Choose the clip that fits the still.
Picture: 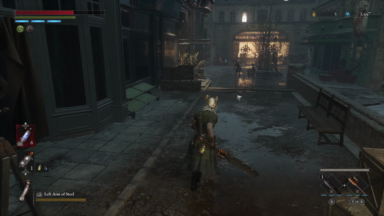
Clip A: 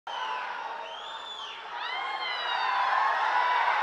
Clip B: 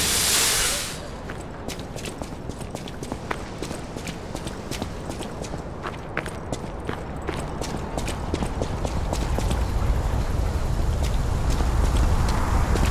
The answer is B